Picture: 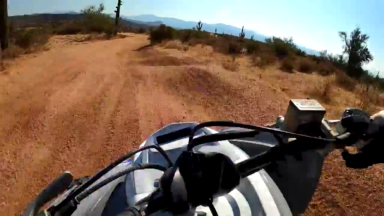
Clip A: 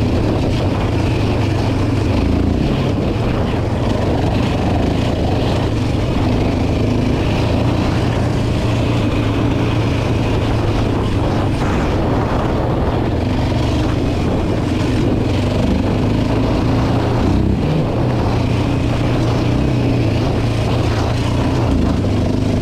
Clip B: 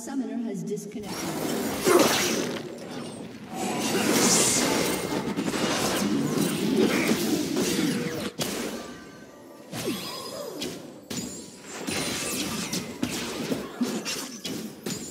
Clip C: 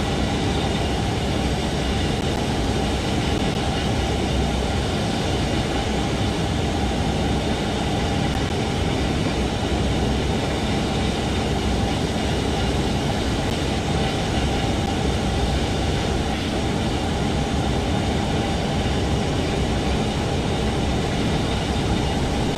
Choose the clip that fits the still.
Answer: A